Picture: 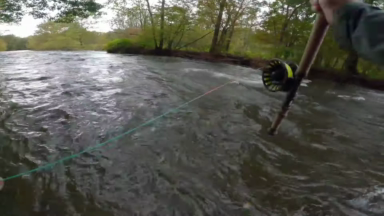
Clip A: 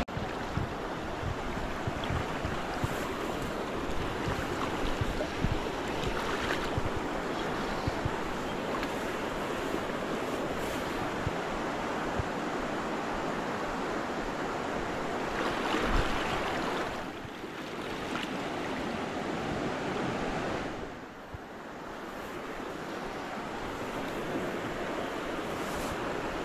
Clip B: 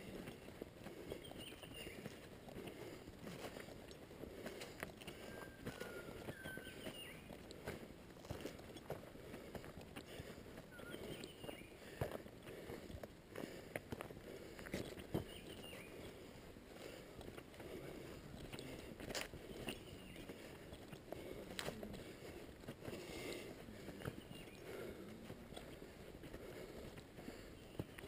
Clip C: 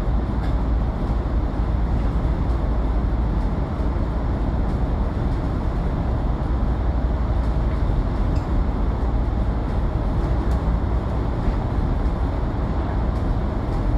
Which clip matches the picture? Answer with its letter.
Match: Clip A